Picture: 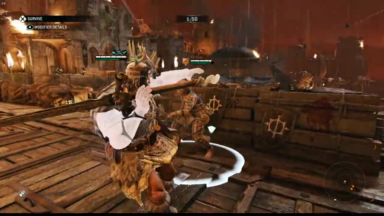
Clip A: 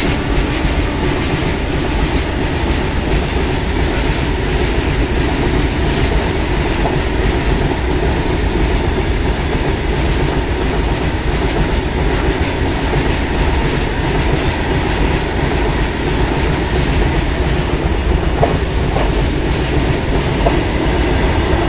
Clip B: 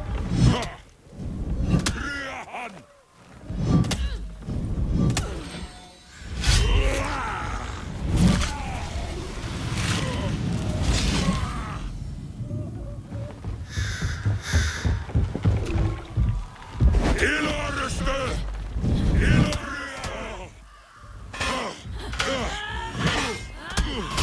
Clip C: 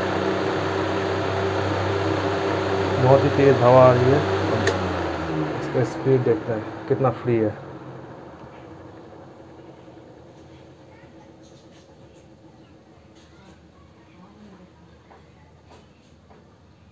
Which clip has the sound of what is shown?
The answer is B